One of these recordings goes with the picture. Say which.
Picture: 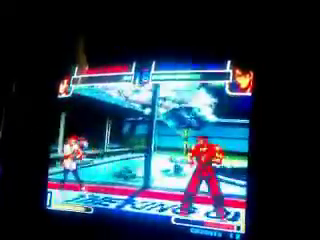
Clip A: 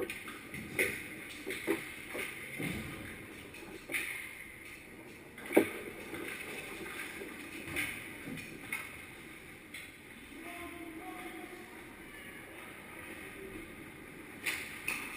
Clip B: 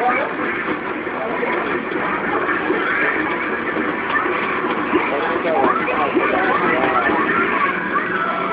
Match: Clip B